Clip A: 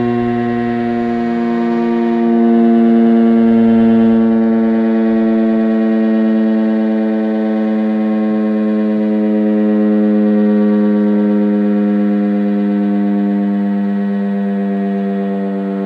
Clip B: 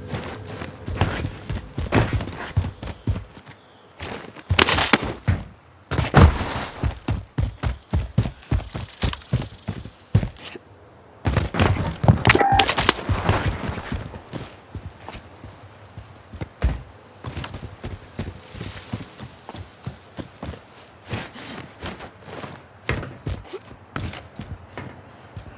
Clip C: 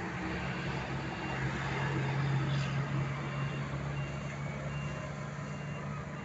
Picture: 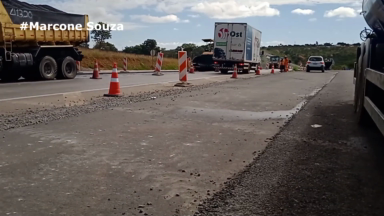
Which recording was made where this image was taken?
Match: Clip C